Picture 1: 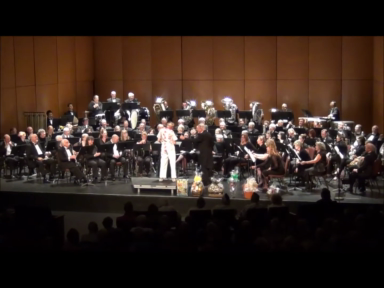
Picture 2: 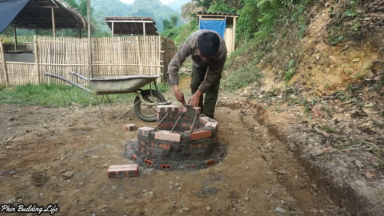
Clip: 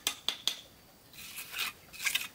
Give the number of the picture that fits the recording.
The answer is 2